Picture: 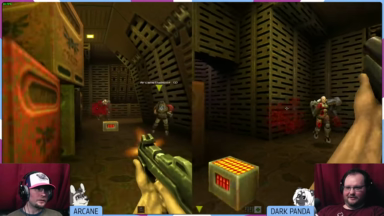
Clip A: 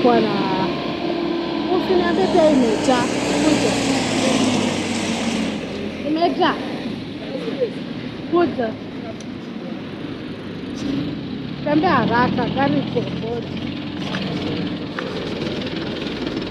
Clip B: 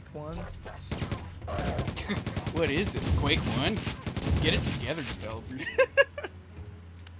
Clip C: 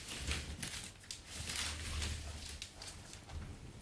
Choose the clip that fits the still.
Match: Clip B